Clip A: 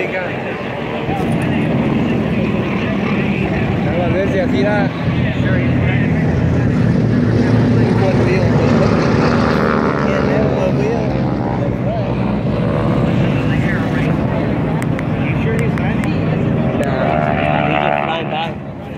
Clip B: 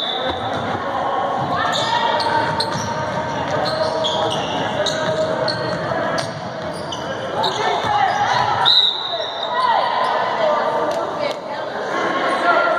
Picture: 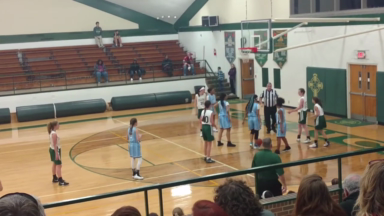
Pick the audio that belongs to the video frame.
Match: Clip B